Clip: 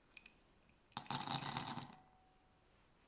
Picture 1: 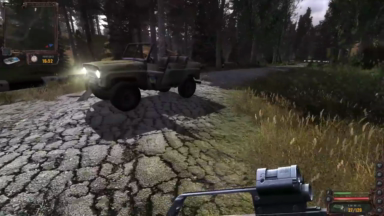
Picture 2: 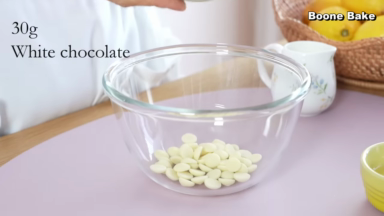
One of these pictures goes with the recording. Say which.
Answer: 2